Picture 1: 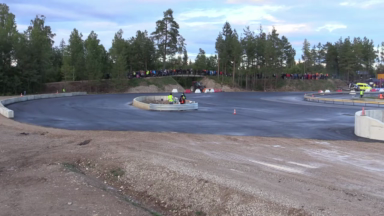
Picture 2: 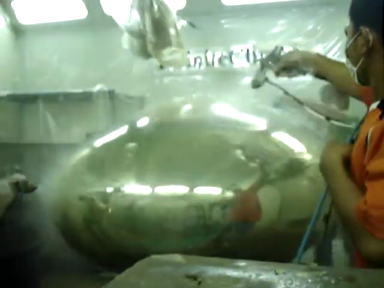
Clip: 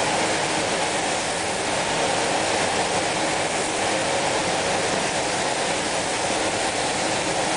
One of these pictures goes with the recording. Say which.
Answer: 2